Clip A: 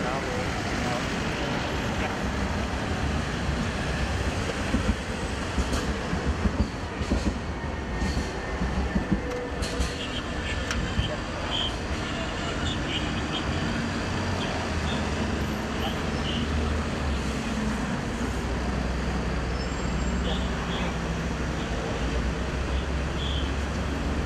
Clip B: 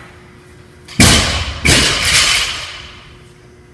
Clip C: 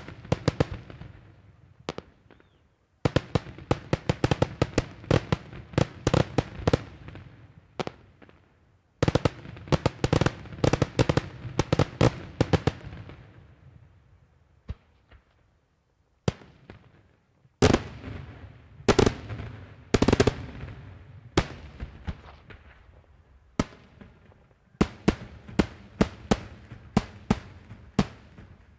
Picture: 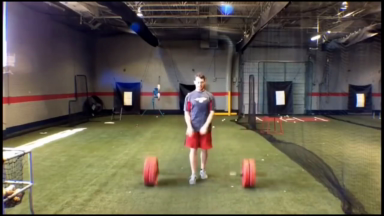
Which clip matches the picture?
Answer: B